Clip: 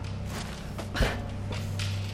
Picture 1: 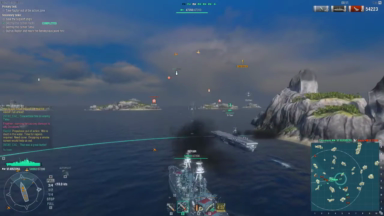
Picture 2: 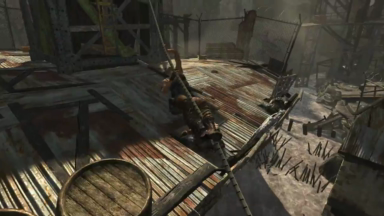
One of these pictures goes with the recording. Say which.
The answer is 2